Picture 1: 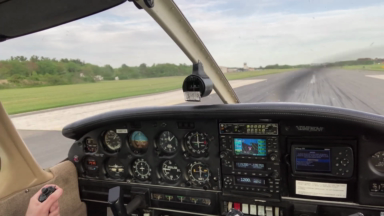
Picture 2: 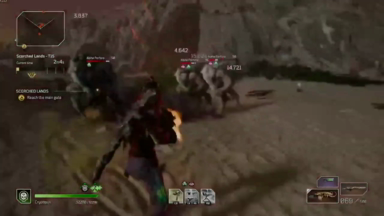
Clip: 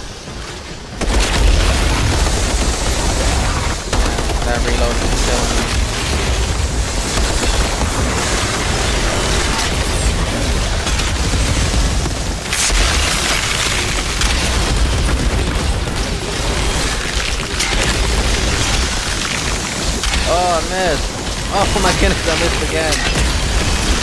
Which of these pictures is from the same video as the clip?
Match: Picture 2